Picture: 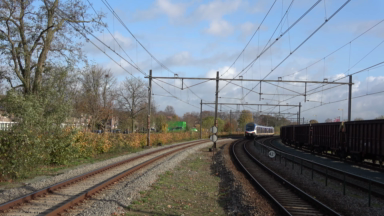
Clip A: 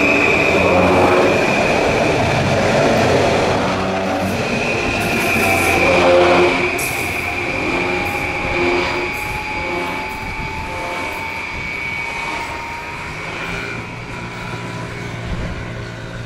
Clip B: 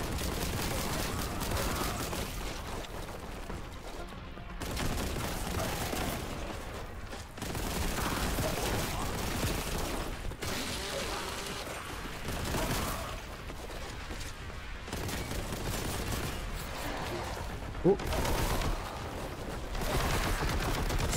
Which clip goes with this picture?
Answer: A